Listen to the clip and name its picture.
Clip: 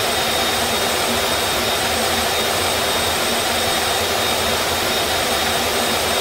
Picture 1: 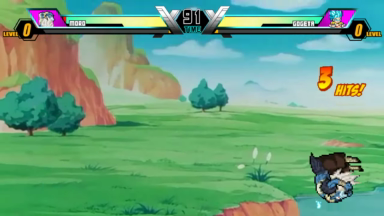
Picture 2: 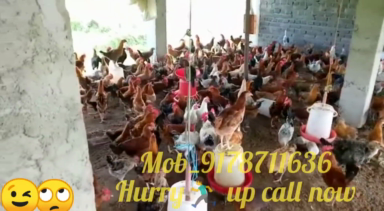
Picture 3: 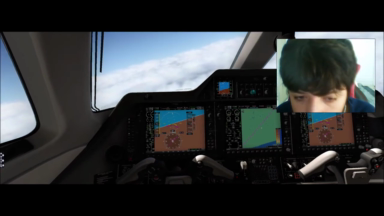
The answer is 3